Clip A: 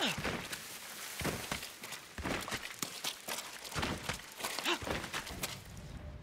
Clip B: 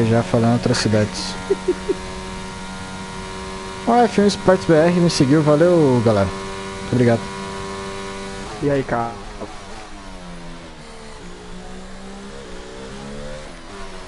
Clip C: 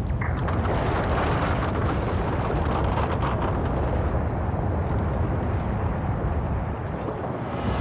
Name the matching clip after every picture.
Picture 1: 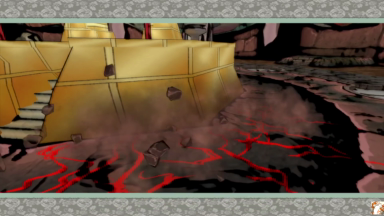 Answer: C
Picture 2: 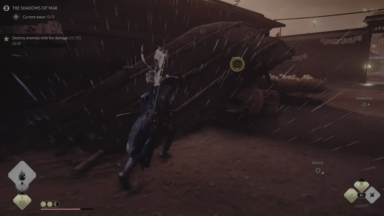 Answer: A